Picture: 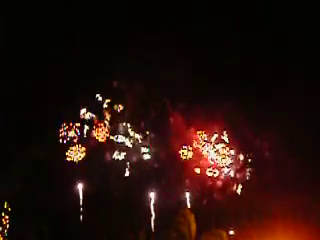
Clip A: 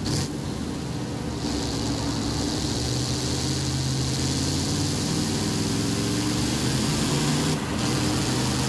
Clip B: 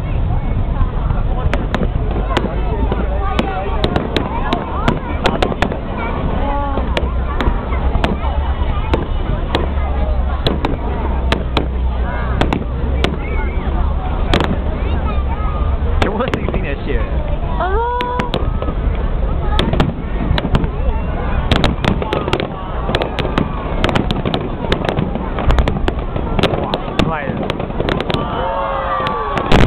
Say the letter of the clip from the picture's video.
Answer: B